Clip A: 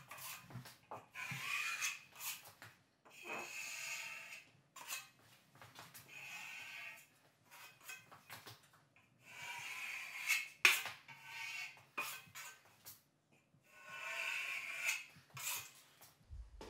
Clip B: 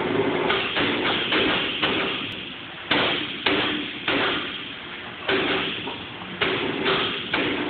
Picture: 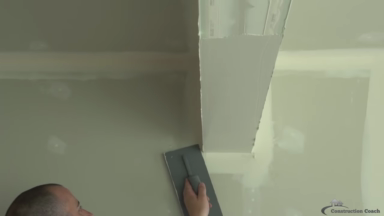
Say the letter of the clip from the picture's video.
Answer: A